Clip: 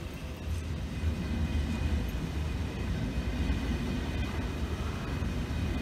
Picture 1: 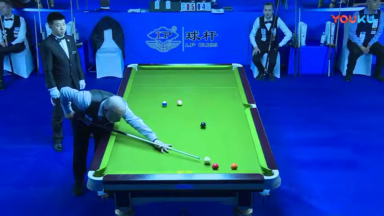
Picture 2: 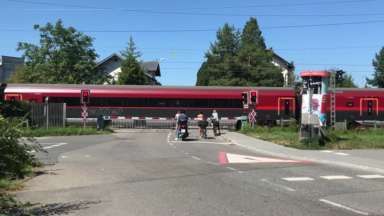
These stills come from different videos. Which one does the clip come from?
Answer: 2